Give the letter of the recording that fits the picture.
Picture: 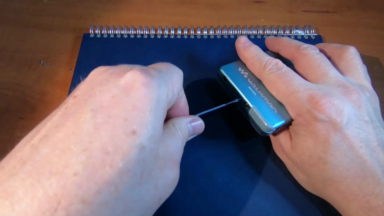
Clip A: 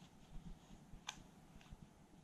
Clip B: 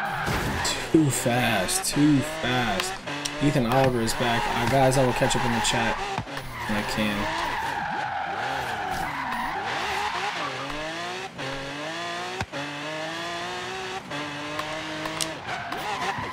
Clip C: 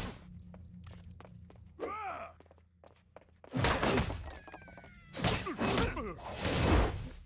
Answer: A